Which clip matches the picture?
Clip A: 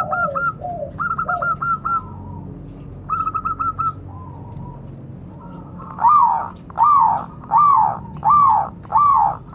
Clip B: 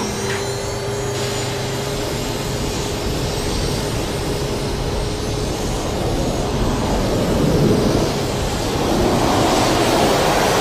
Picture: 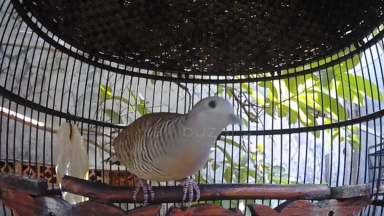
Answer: A